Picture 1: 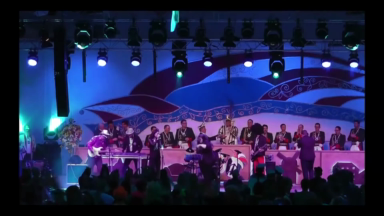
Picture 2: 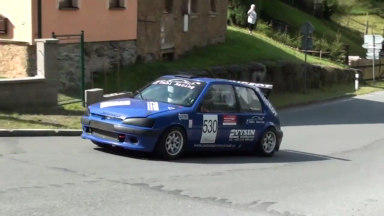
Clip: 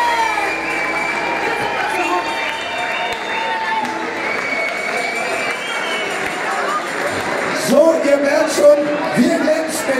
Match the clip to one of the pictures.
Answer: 1